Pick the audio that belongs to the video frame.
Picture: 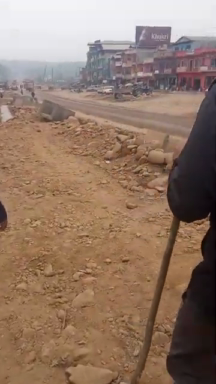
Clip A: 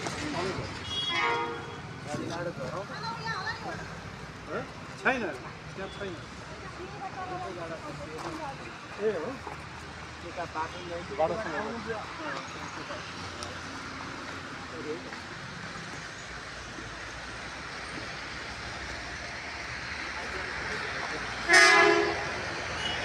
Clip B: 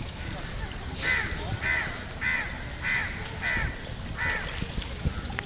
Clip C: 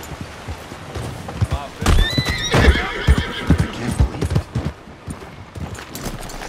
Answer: A